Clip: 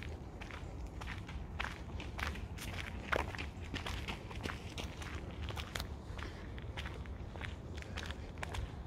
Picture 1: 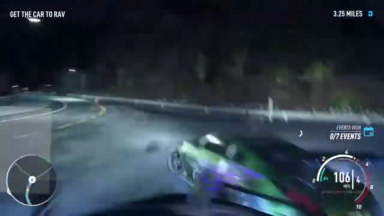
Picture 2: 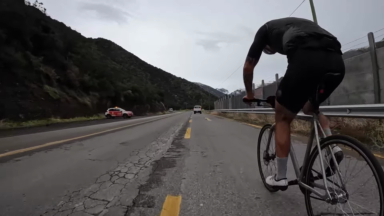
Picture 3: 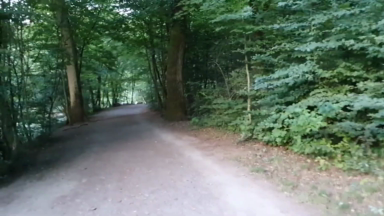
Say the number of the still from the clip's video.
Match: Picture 3